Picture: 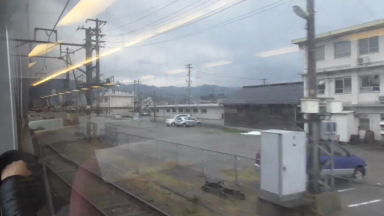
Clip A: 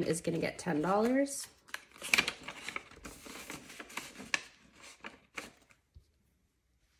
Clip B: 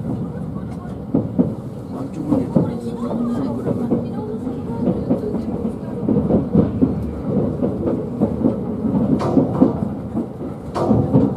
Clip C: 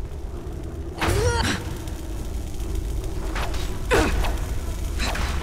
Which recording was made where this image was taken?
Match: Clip B